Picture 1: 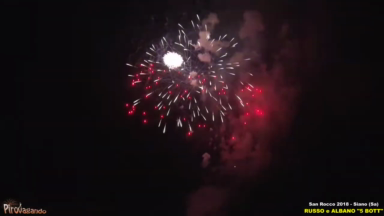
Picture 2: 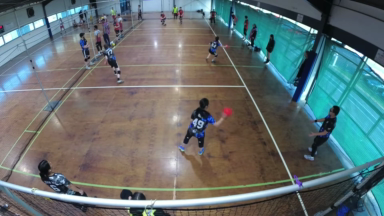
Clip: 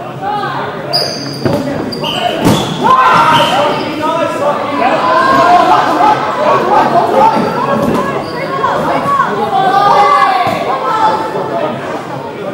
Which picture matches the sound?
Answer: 2